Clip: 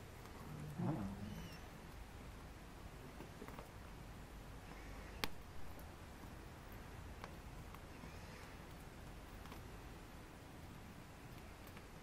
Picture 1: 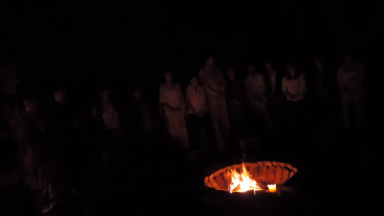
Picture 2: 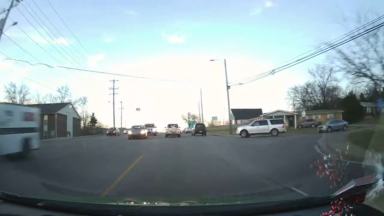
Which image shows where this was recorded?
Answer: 1